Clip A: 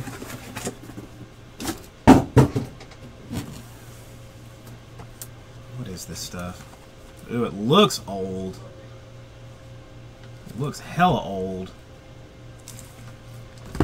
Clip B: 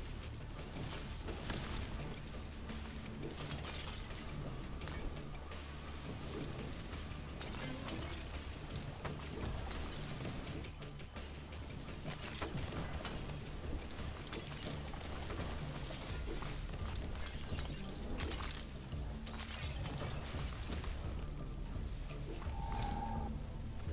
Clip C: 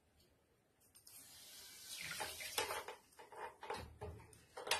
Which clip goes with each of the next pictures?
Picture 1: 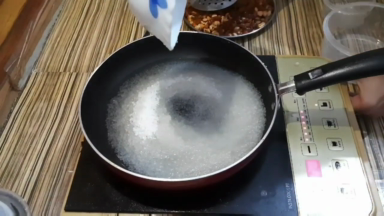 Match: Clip C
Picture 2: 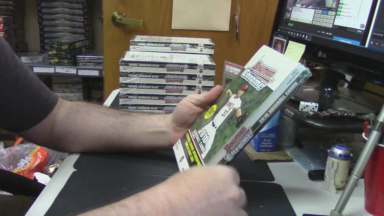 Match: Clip A